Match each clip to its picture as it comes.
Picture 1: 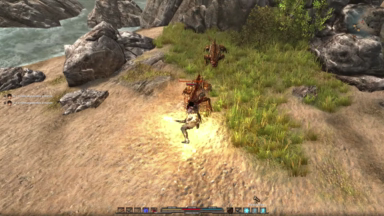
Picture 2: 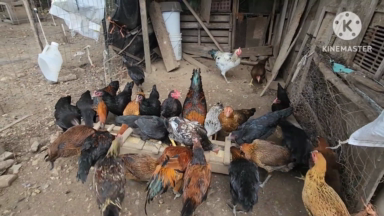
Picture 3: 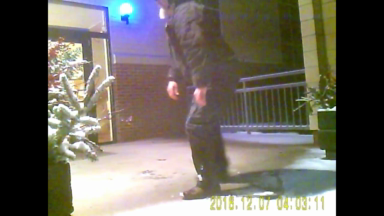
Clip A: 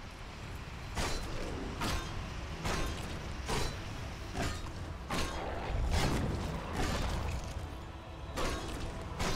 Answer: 1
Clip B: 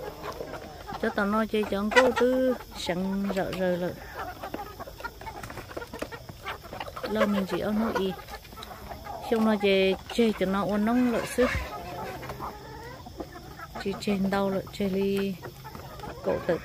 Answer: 2